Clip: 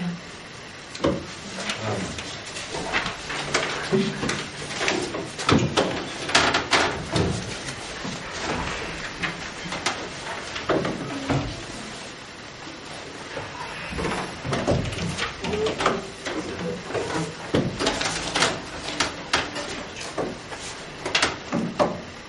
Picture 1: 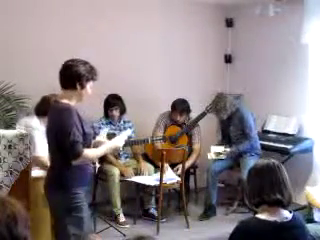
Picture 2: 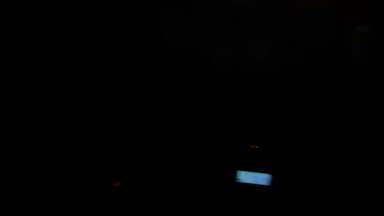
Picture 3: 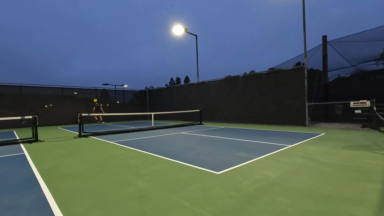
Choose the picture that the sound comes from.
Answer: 1